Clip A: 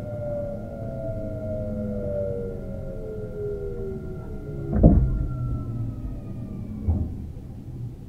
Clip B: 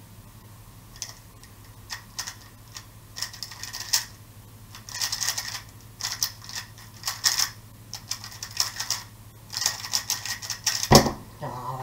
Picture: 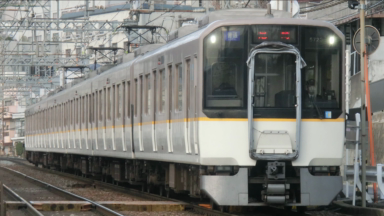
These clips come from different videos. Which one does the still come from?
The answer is A